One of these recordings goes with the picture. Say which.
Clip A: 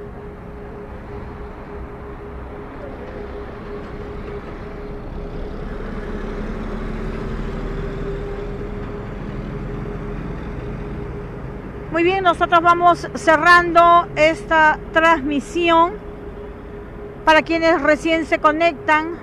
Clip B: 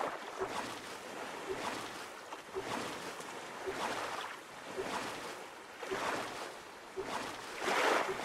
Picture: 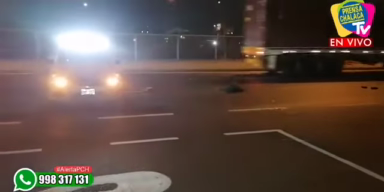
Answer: A